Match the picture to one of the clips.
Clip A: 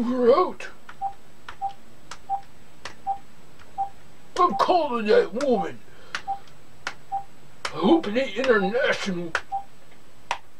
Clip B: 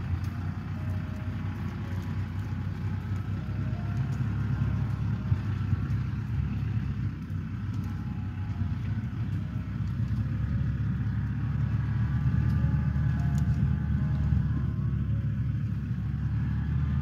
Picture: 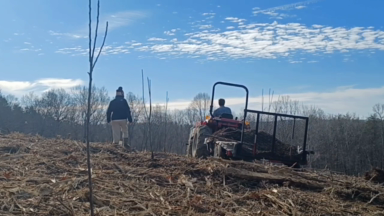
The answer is B